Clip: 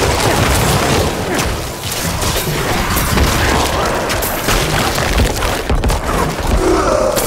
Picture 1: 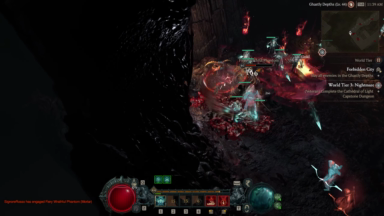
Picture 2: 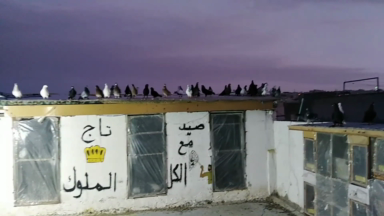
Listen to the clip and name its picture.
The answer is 1